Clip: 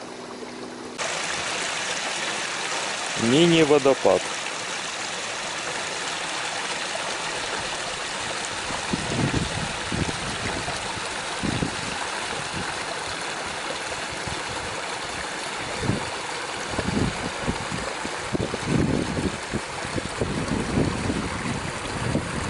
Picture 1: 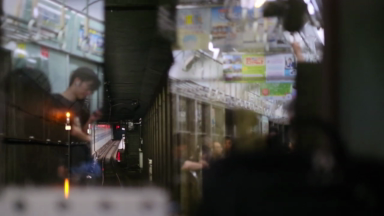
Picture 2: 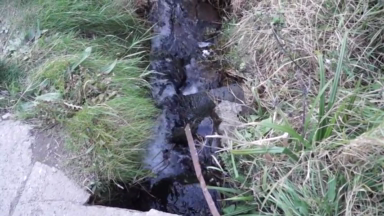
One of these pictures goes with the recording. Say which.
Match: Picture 2